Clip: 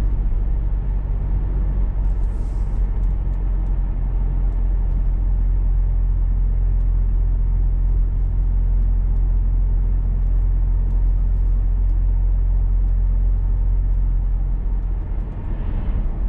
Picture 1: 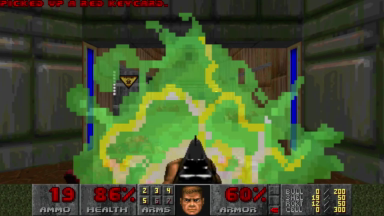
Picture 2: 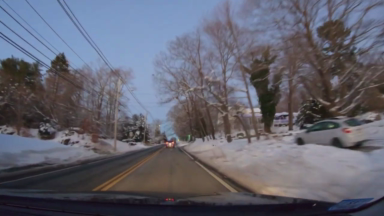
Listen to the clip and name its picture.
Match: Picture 2